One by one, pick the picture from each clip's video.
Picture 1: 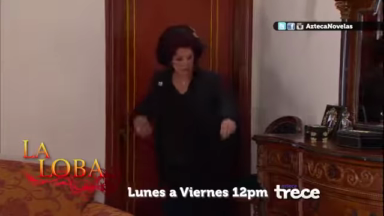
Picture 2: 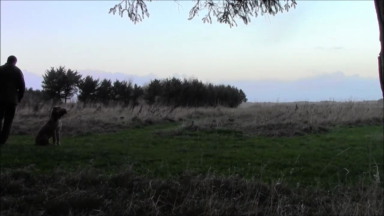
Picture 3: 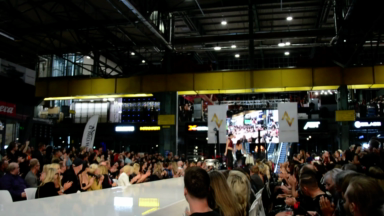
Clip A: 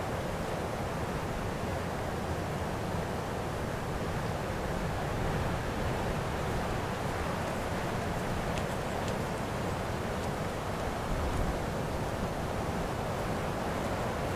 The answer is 2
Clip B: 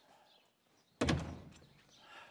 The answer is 1